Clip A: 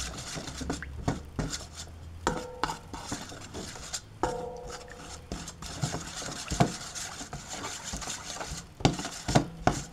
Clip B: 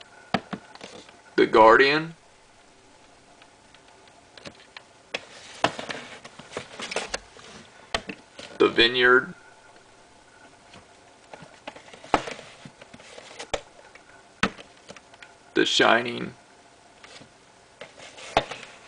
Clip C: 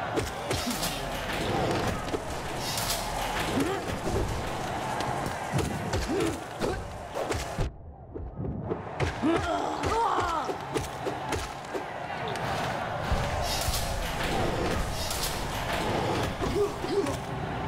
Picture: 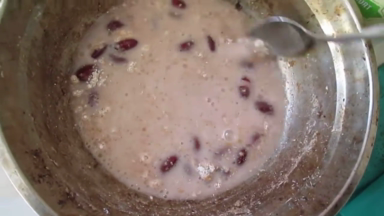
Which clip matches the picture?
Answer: A